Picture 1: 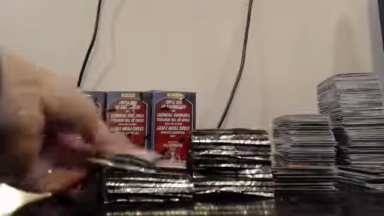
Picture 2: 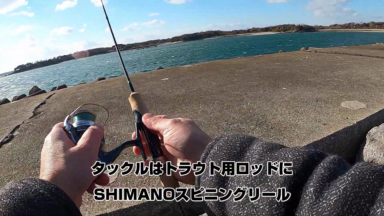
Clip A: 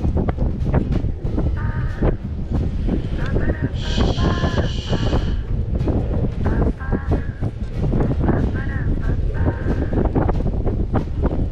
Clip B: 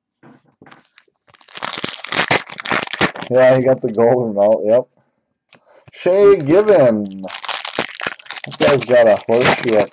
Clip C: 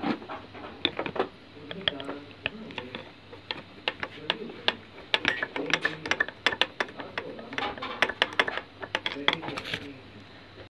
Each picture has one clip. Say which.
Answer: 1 B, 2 A